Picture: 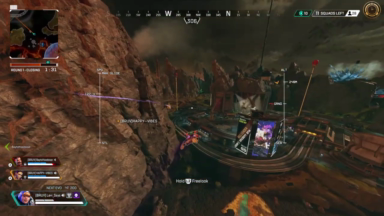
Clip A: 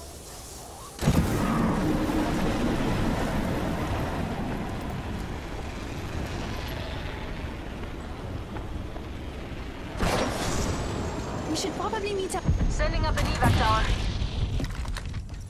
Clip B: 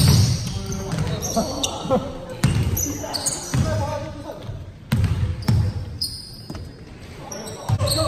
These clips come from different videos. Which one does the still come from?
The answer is A